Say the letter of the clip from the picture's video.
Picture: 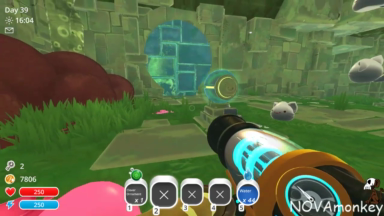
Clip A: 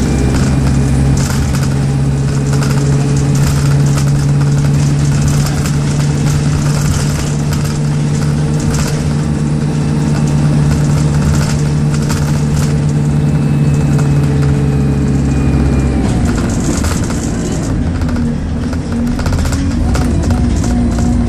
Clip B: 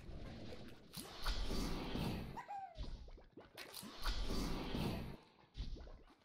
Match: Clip B